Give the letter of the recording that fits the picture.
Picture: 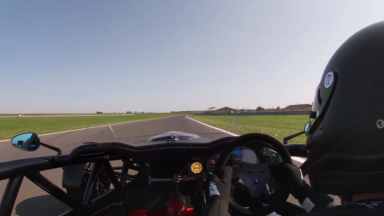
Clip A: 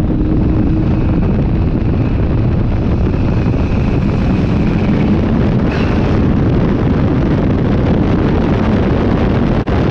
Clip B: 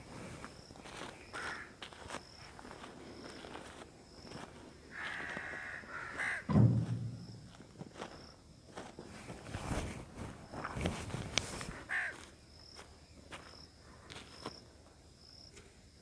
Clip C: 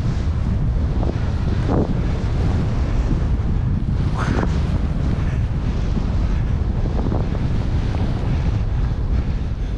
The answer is A